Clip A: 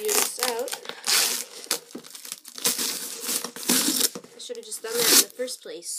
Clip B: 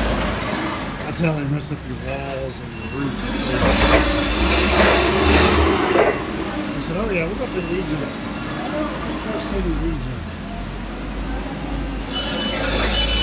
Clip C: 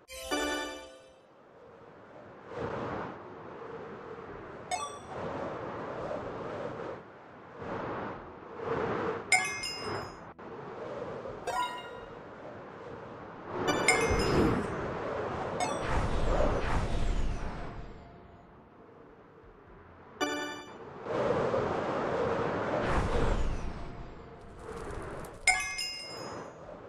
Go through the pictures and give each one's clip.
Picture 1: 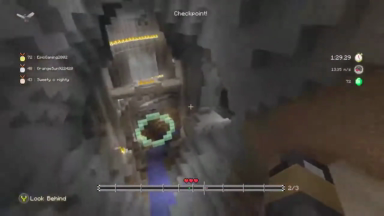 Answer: C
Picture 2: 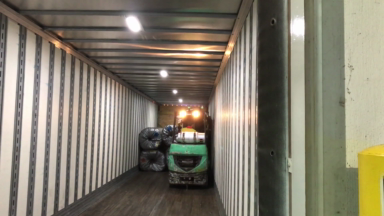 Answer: B